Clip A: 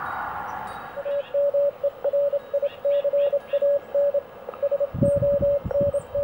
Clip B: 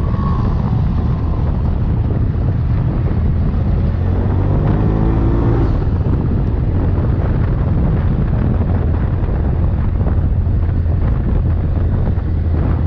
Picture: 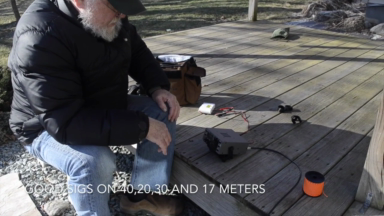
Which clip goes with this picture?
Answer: A